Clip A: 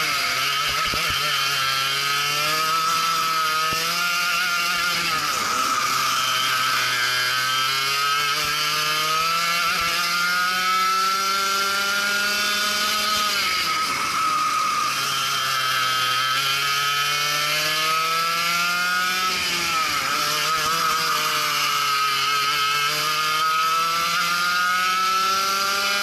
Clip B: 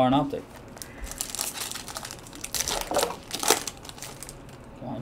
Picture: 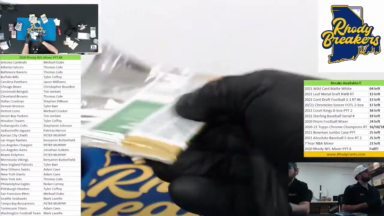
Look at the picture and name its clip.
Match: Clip B